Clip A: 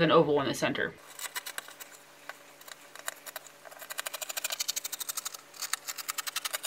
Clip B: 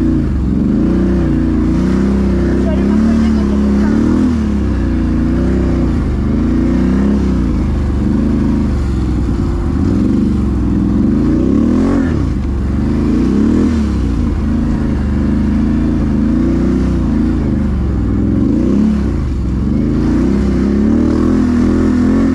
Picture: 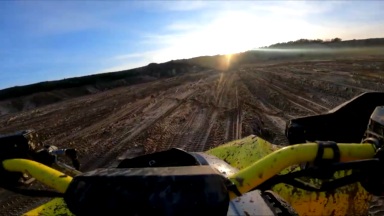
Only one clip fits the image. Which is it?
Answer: B